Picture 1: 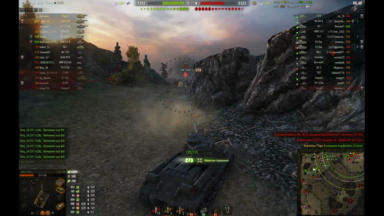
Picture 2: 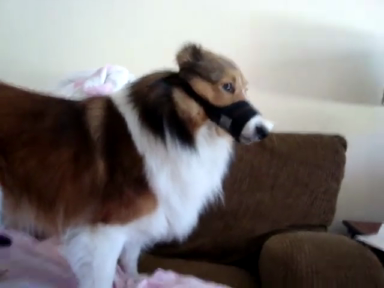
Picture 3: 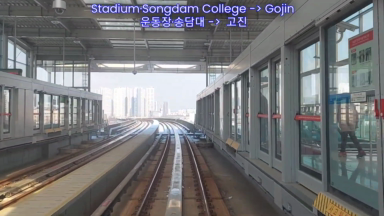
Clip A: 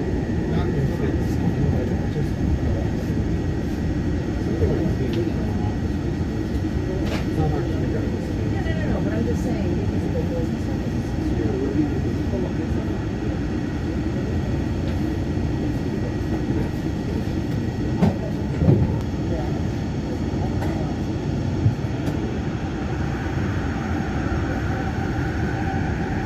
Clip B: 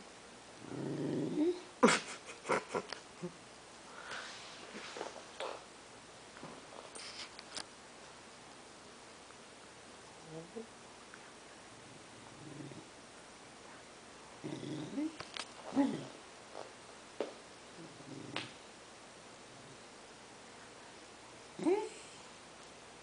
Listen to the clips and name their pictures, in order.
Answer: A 3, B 2